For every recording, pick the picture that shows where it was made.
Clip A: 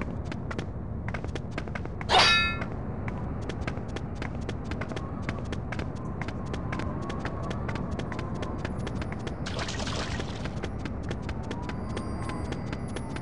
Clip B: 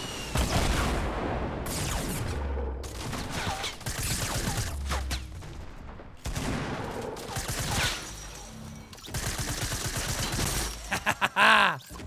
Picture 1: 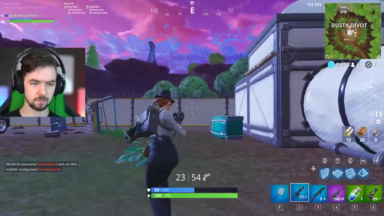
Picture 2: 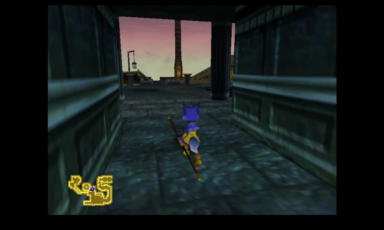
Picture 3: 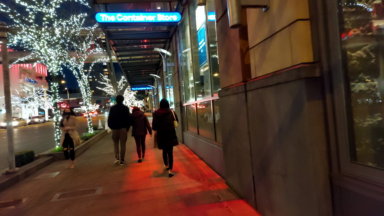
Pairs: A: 2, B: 1